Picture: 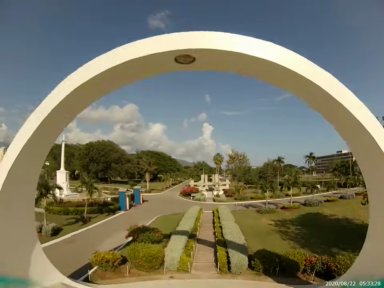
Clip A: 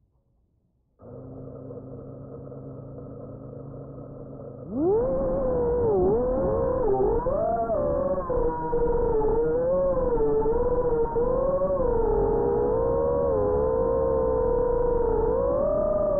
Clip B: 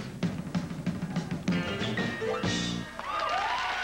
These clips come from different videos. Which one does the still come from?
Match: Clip A